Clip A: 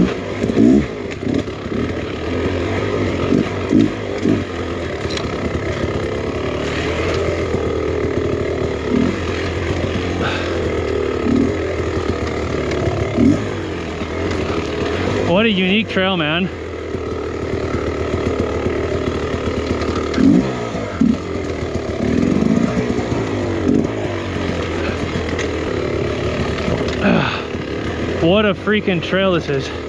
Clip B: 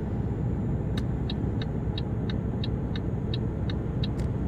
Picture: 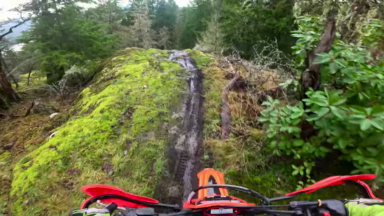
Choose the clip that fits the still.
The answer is A